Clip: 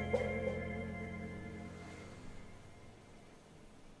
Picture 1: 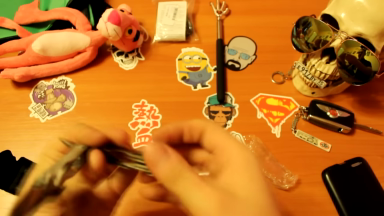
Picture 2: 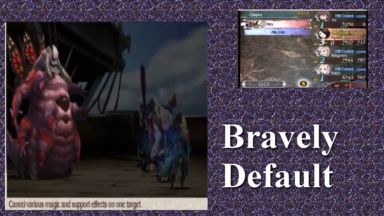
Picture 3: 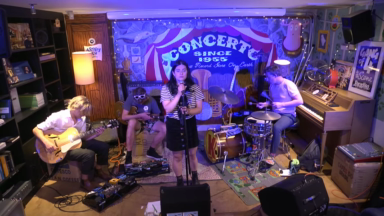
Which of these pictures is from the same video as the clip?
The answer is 3